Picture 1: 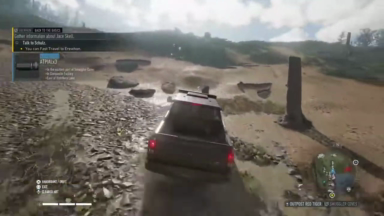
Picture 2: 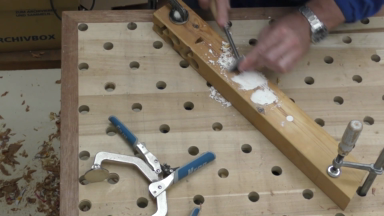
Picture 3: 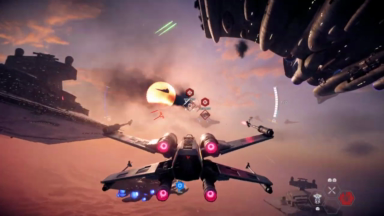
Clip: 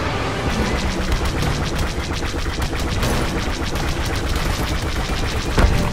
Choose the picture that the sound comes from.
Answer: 3